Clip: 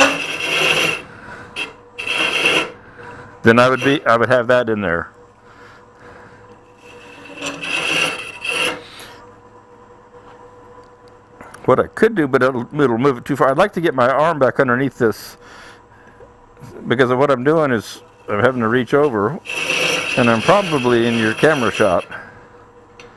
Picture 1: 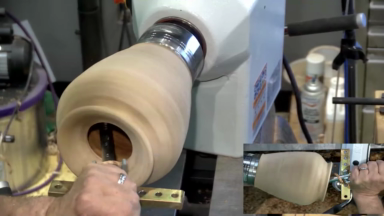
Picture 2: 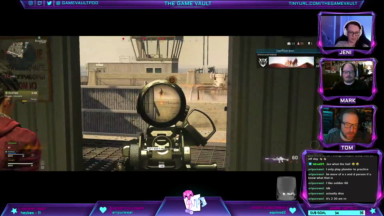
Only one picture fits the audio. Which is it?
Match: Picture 1